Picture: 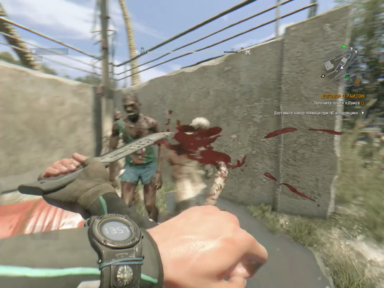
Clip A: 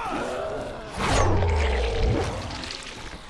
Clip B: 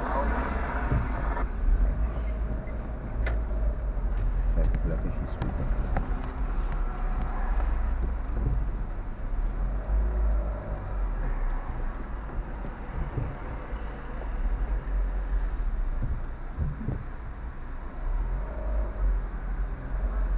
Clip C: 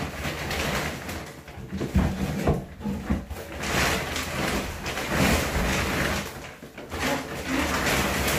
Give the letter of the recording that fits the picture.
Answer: A